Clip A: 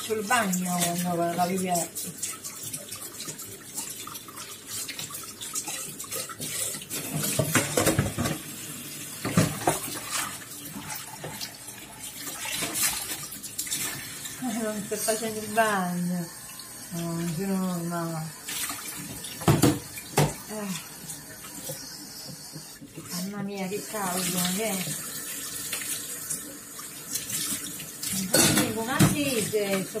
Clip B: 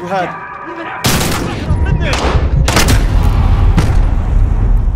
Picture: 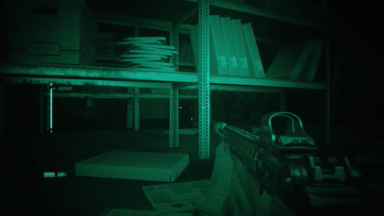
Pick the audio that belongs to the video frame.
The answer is B